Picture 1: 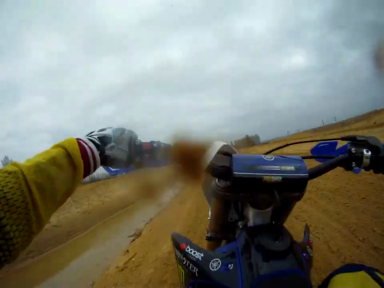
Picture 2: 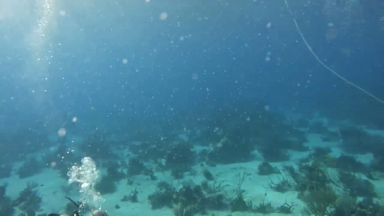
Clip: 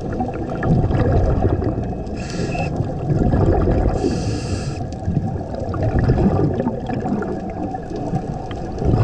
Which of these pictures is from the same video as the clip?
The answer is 2